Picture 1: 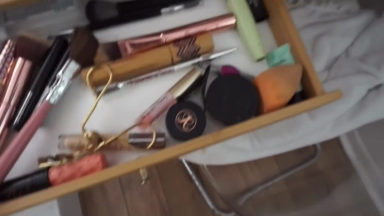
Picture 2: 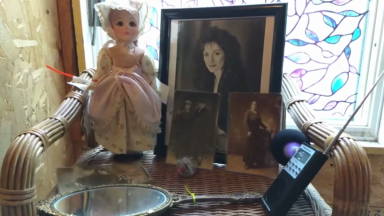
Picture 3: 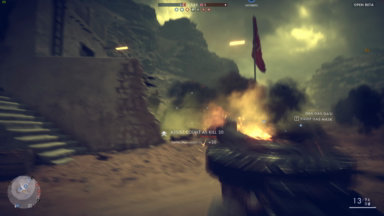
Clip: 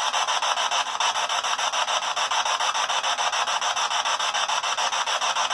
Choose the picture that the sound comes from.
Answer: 2